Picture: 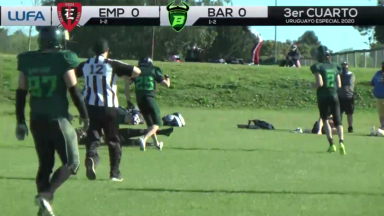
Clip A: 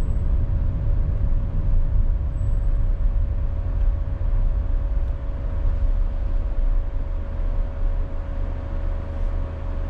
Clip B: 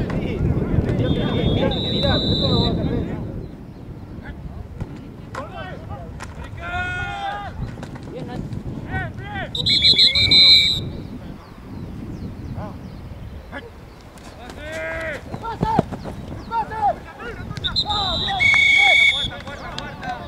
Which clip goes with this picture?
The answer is B